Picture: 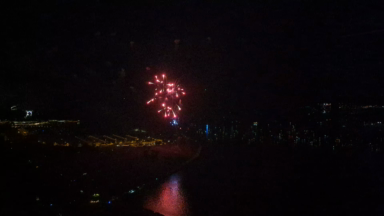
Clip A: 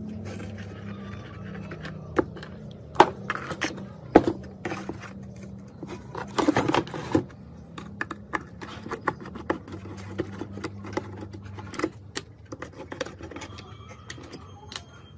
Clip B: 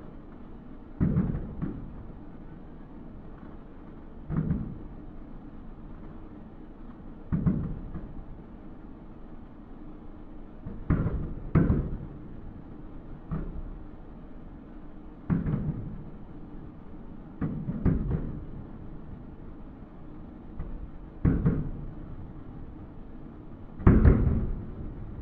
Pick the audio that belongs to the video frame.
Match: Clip B